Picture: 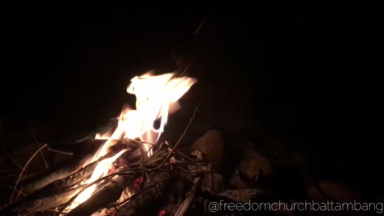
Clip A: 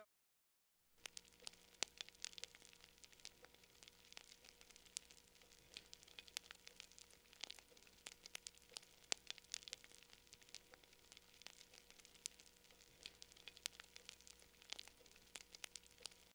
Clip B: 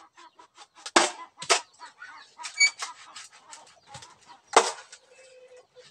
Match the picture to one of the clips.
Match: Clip A